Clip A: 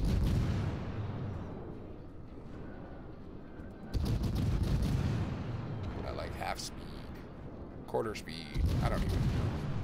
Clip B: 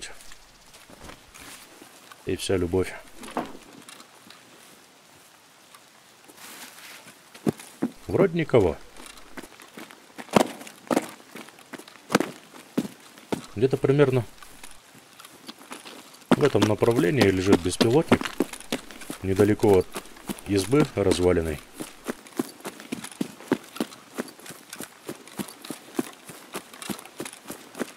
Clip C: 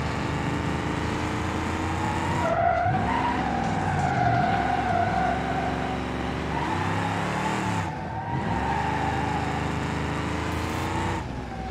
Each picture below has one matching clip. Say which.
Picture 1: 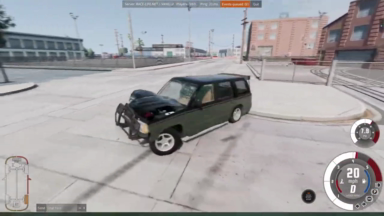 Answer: C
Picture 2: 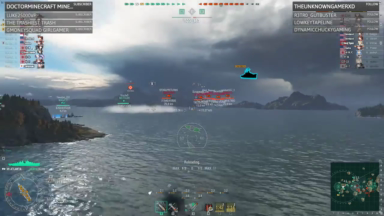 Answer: A